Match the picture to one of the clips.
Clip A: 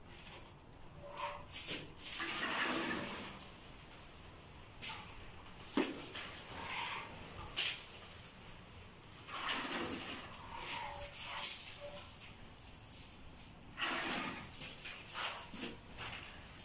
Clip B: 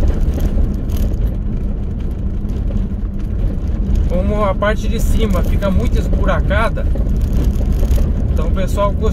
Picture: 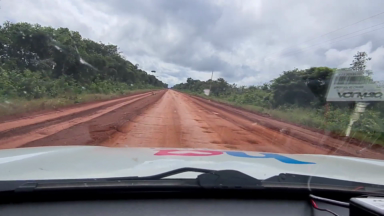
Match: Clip B